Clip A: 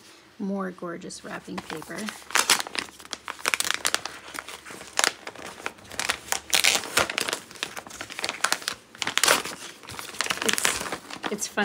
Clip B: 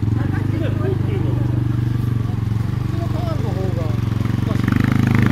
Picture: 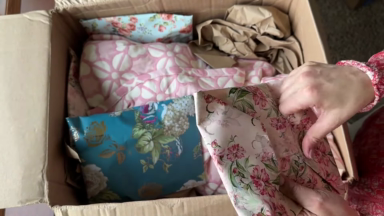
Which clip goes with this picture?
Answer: A